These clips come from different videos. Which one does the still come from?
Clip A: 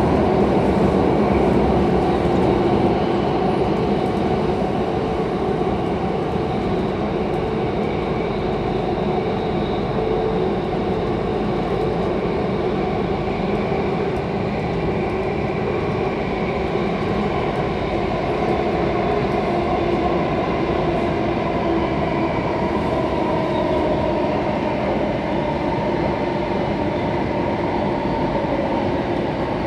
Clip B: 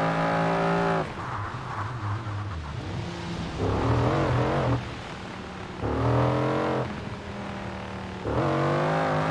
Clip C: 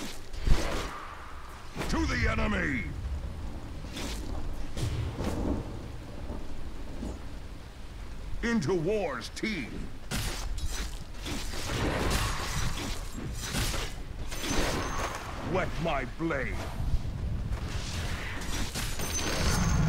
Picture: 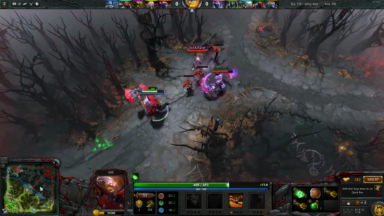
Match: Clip C